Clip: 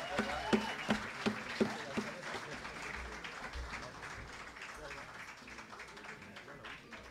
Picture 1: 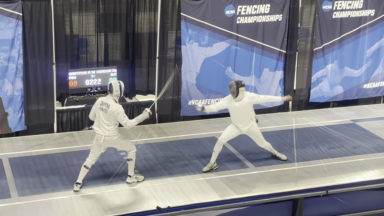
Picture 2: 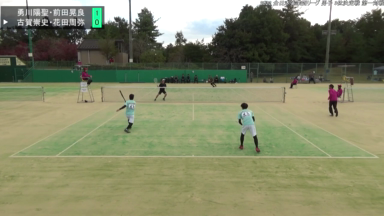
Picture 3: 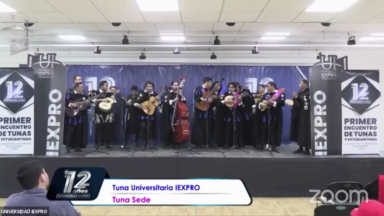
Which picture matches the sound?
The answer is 3